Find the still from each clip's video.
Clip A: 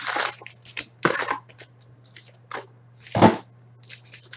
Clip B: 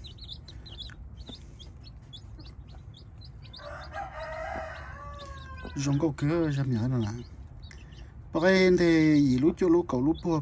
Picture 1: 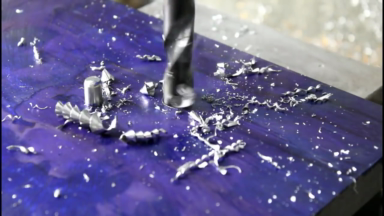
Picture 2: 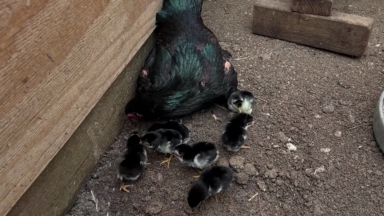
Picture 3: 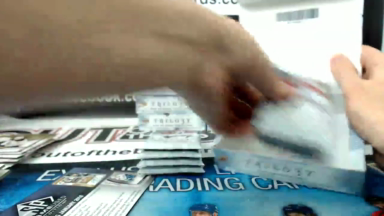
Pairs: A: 3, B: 2